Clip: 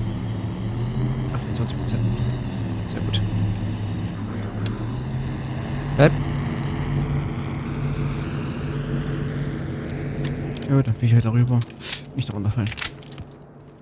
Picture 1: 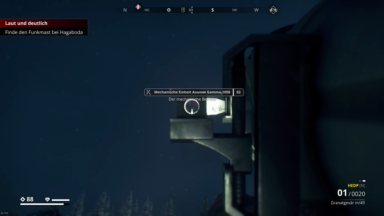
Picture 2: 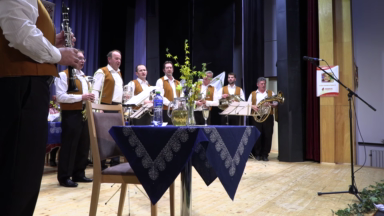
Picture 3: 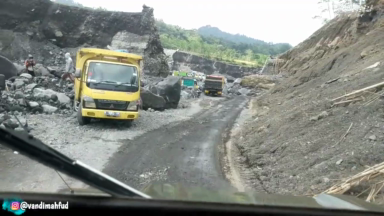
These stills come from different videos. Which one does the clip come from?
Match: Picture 1